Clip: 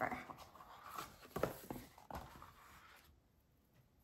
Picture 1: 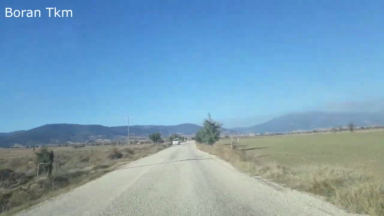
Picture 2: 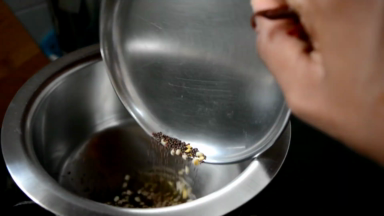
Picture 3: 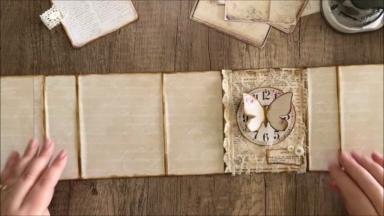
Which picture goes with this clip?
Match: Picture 3